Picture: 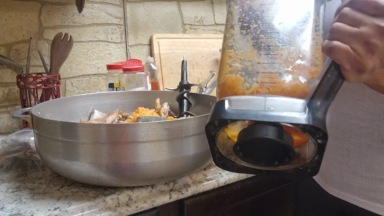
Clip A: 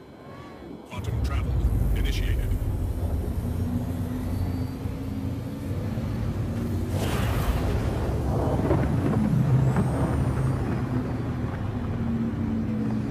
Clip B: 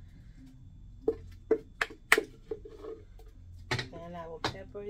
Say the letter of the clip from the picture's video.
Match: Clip B